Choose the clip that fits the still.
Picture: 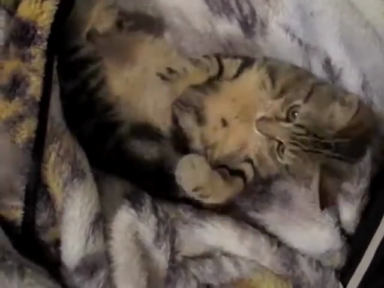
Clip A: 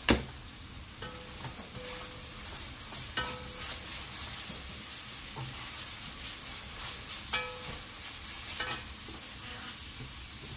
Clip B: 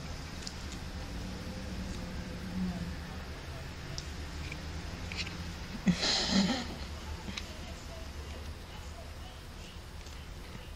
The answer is B